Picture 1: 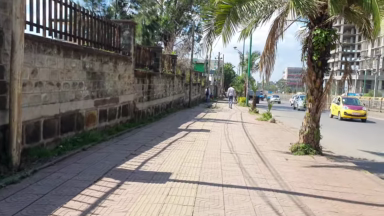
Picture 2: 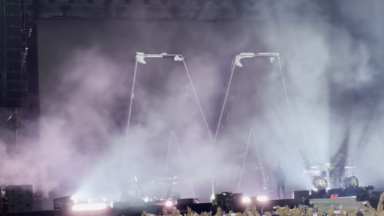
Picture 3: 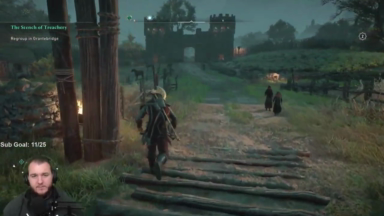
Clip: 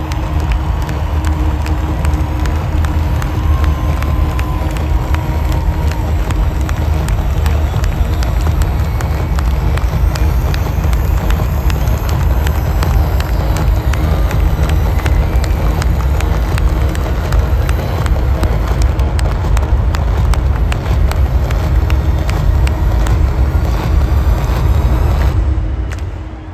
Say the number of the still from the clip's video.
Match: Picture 2